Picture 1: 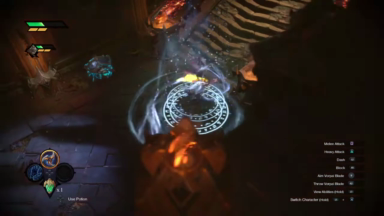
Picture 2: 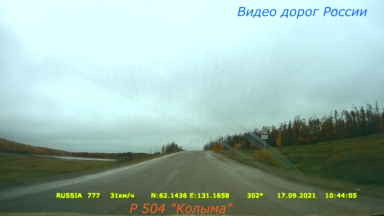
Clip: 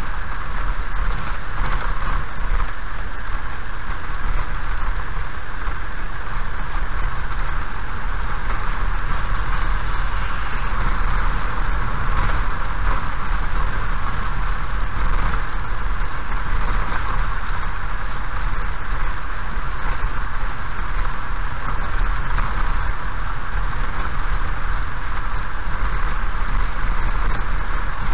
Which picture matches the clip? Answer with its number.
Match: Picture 2